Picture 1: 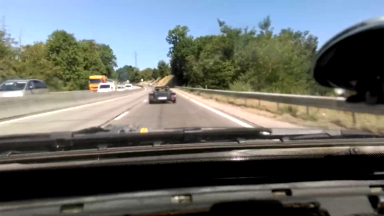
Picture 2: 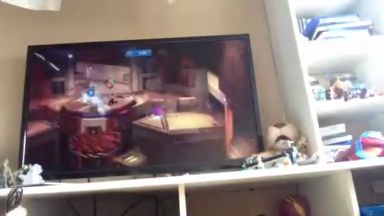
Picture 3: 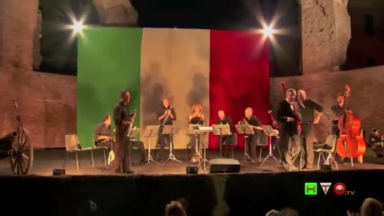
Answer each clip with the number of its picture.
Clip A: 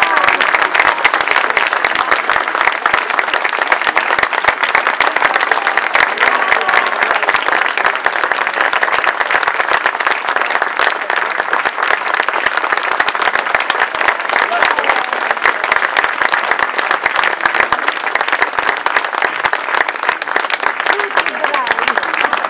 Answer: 3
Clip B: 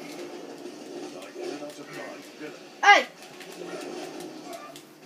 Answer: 2